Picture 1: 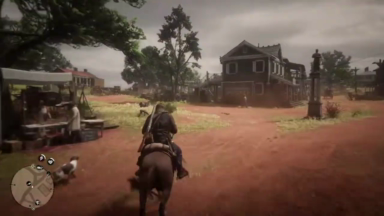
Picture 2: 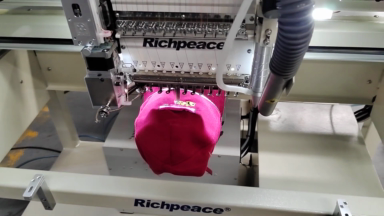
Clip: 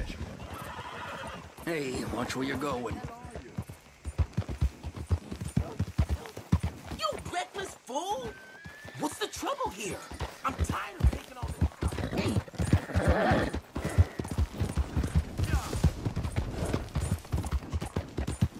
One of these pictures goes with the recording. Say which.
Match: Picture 1